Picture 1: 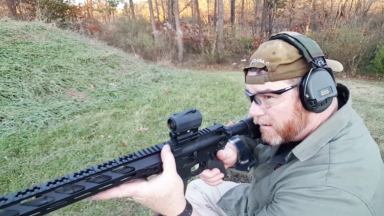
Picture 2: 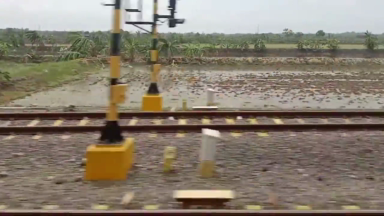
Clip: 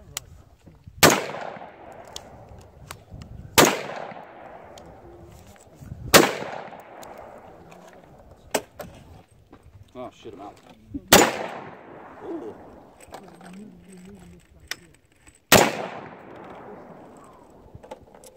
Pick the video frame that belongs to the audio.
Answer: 1